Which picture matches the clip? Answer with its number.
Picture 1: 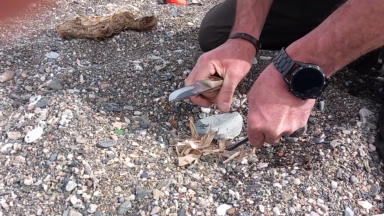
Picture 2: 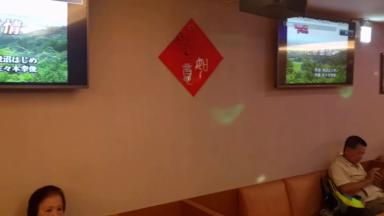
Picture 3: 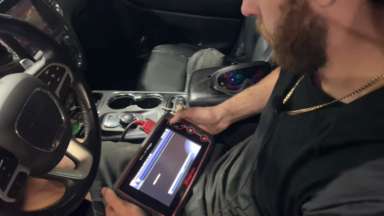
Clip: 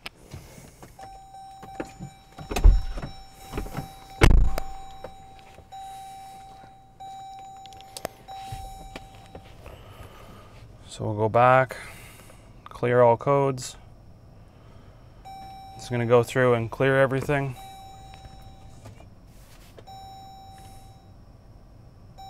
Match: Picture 3